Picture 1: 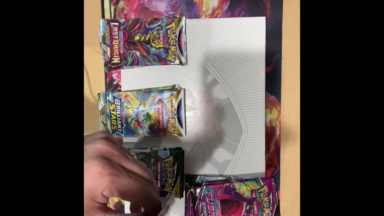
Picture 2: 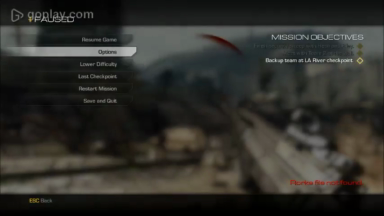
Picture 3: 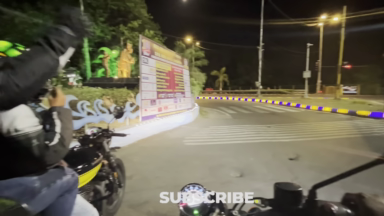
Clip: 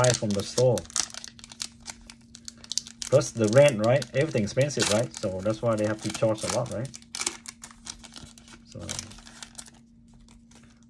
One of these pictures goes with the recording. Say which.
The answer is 1